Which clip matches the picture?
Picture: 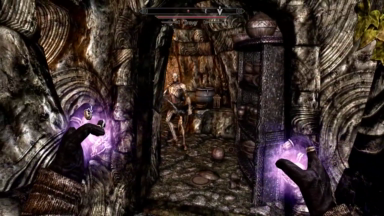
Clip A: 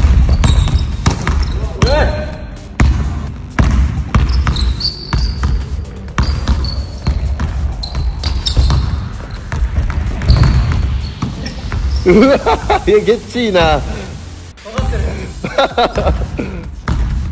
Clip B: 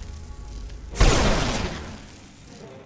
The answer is B